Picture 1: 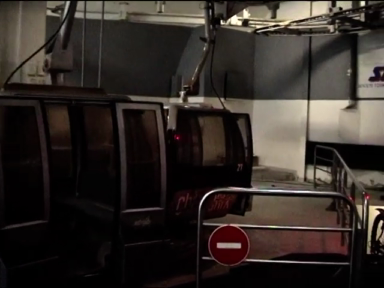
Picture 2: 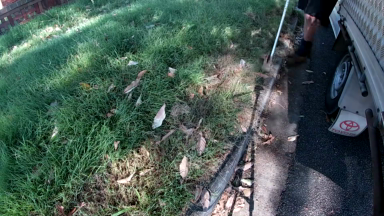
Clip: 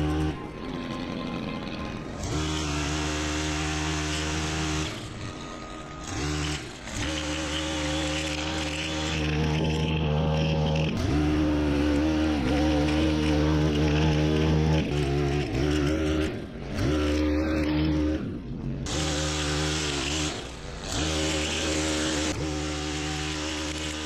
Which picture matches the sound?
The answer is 2